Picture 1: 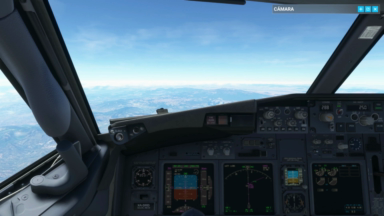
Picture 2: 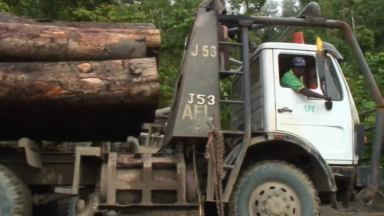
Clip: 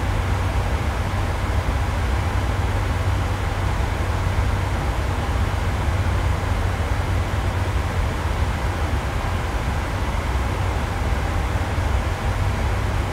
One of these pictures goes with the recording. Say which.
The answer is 1